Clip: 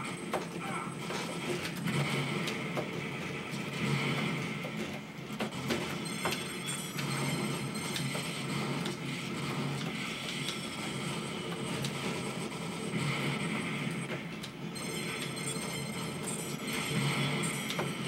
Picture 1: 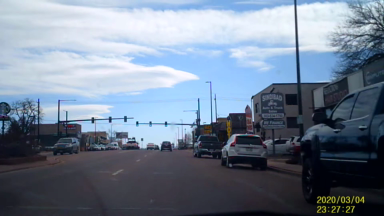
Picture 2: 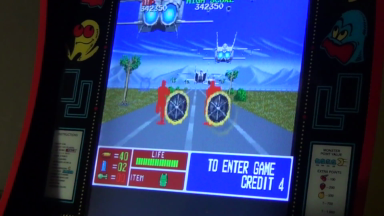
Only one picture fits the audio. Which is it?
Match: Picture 2